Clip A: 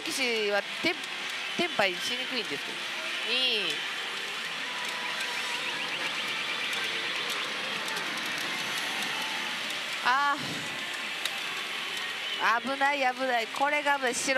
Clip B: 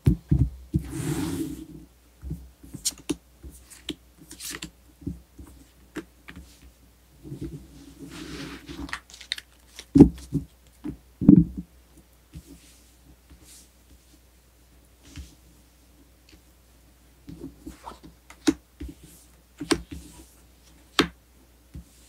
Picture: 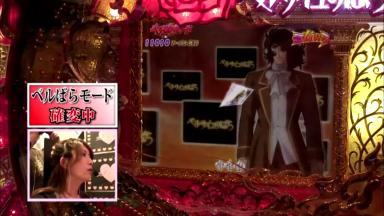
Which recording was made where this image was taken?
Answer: A